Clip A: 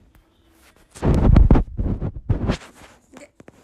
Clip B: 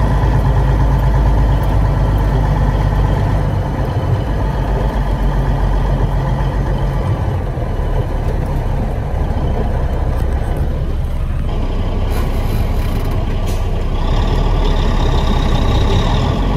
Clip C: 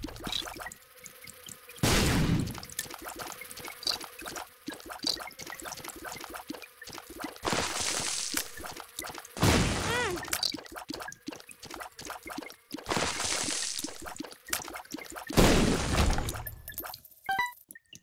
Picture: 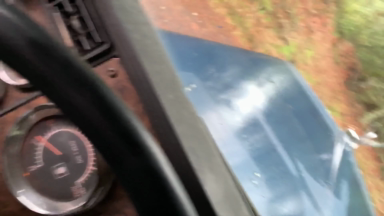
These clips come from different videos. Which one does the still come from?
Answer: B